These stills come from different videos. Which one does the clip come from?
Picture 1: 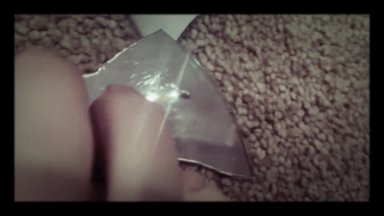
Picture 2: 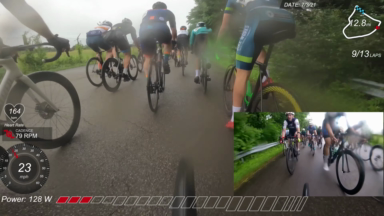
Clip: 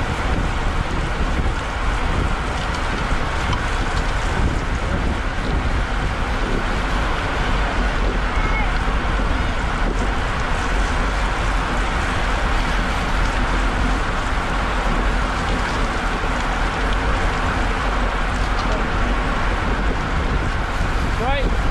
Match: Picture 2